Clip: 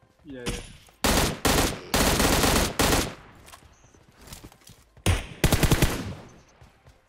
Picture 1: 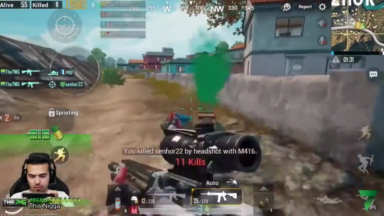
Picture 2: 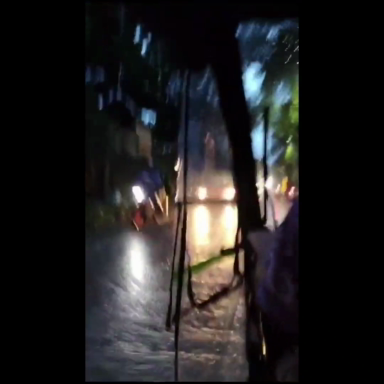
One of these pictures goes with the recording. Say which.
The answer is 1